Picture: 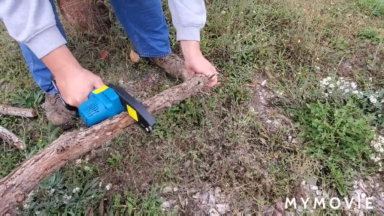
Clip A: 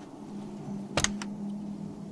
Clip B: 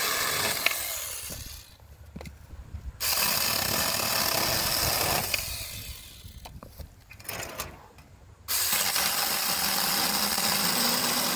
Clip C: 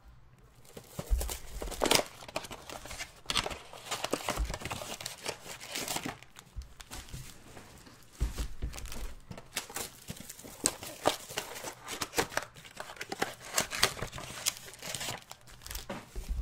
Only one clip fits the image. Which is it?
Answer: B